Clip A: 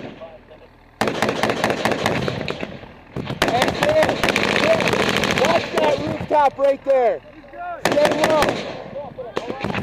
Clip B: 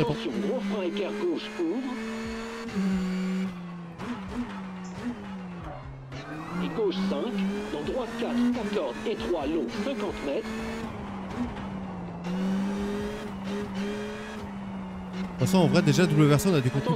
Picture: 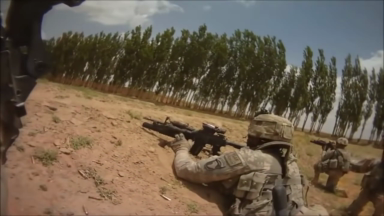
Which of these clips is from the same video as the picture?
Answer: A